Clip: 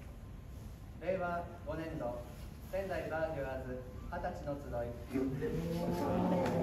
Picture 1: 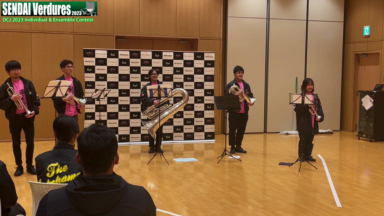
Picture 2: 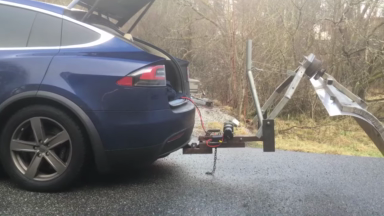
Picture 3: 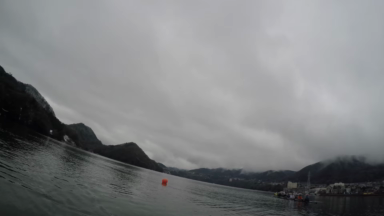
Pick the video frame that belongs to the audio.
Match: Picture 1